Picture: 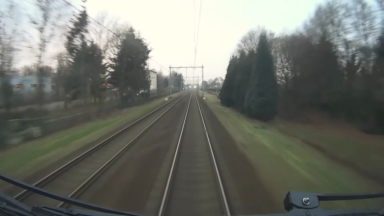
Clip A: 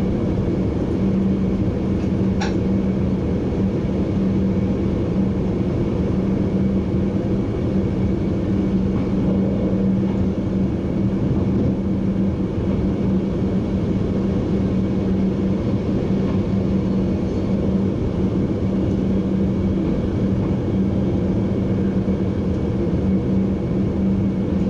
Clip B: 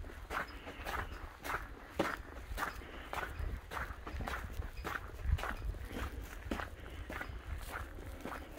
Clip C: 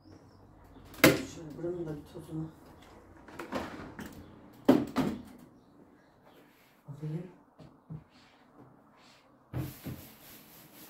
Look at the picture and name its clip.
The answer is A